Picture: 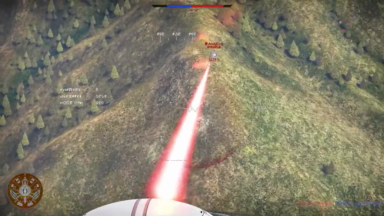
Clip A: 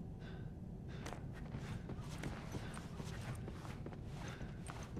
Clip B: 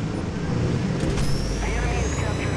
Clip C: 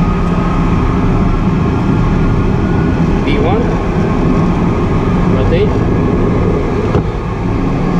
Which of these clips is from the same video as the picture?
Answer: B